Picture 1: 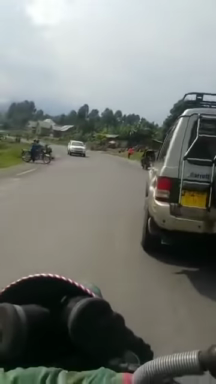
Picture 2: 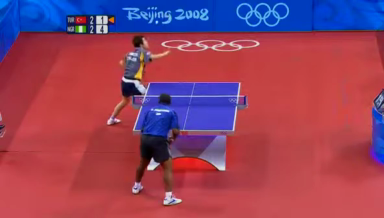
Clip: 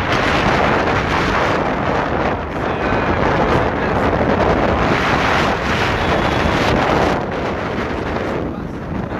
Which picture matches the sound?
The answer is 1